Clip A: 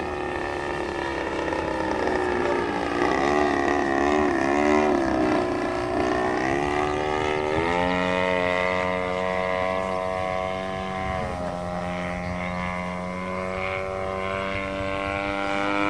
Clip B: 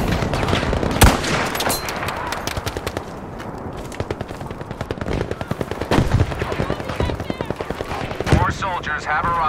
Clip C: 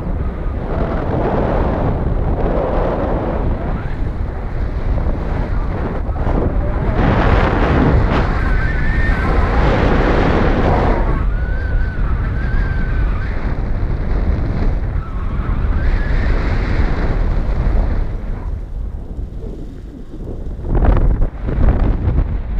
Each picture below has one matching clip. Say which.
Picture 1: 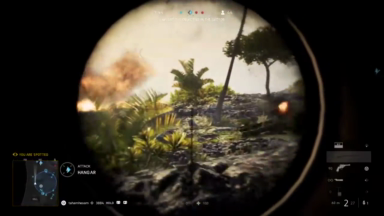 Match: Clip B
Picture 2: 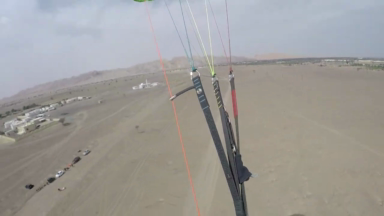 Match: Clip C